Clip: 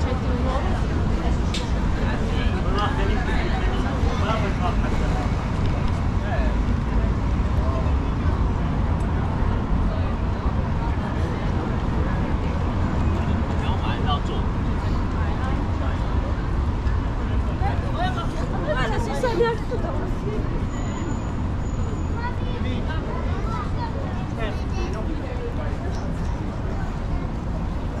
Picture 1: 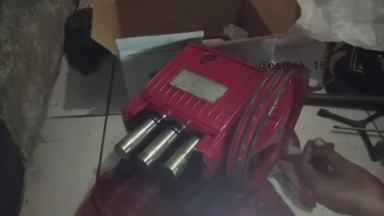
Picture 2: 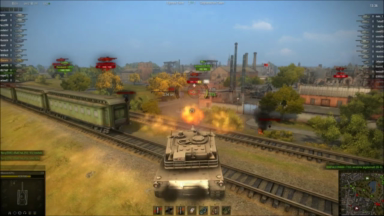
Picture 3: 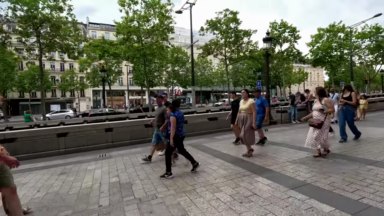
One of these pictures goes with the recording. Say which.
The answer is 3